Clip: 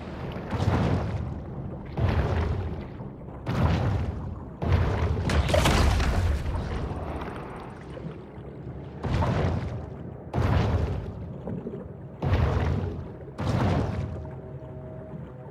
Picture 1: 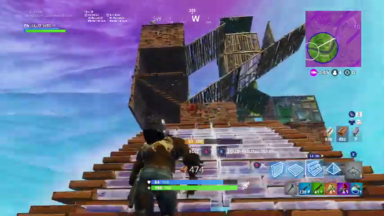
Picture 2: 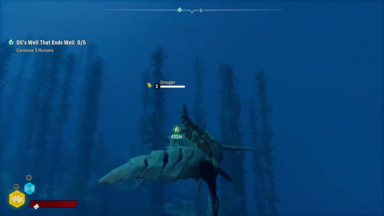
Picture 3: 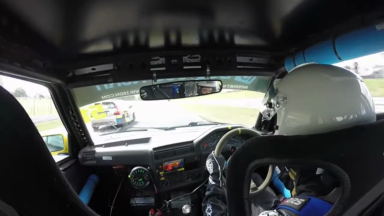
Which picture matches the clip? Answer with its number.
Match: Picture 2